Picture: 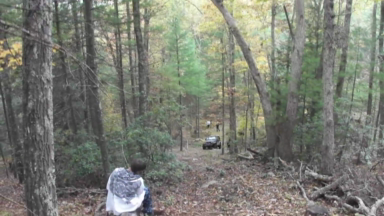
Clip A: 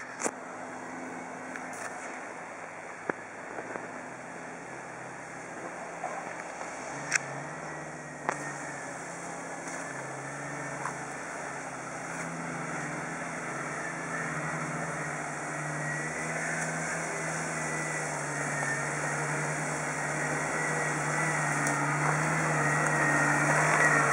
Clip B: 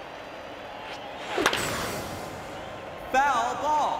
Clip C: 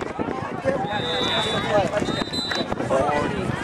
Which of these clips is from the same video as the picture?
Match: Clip A